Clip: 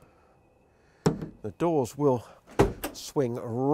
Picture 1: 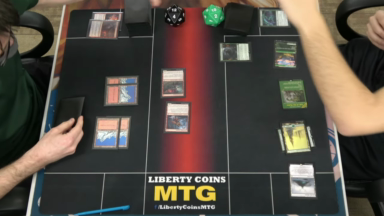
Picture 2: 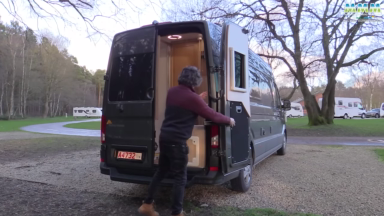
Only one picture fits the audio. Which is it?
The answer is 2